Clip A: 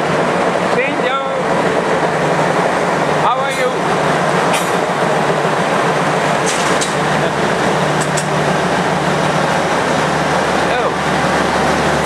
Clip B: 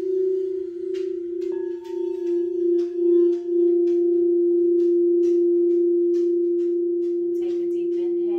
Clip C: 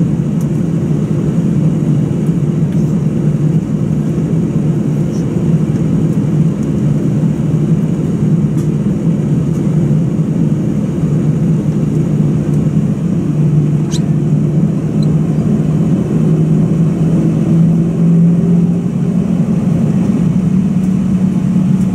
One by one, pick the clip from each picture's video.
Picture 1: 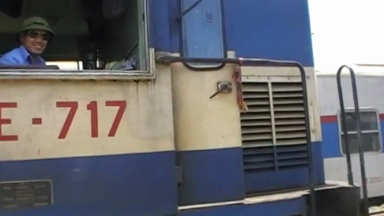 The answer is A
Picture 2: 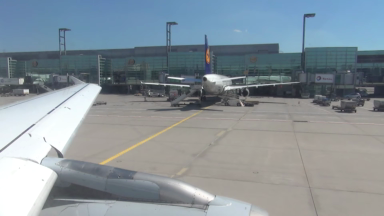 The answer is C